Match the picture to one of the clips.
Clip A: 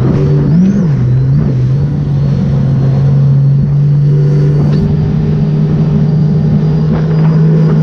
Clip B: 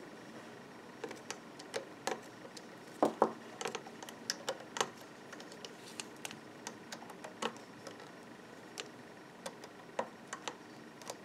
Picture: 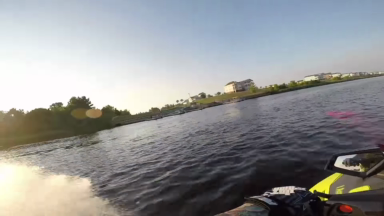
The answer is A